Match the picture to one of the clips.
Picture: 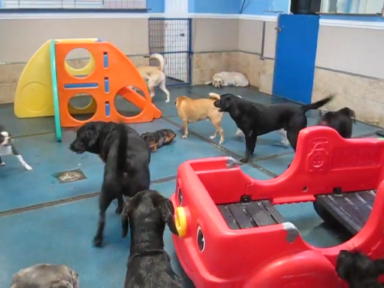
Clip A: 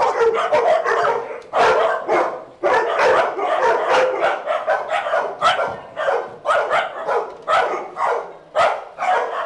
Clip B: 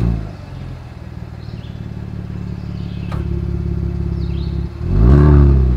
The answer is A